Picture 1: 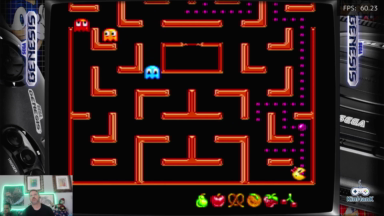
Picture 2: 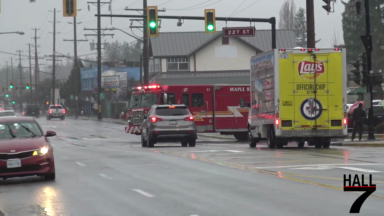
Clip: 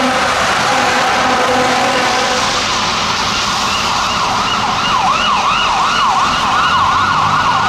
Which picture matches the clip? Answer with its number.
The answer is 2